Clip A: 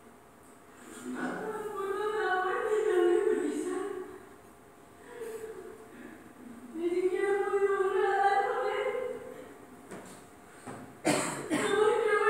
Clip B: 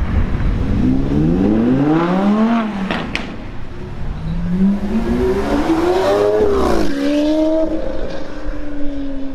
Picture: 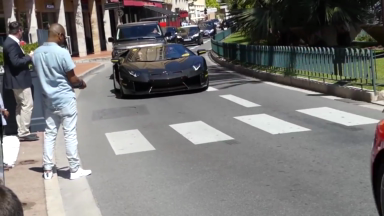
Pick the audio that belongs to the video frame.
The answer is B